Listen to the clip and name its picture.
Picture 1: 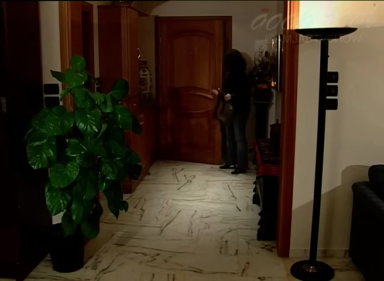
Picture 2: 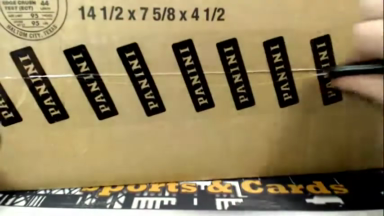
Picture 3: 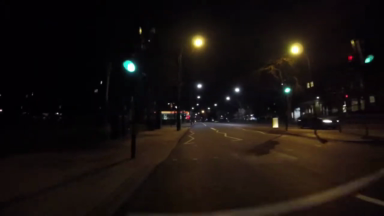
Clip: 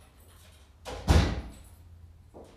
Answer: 1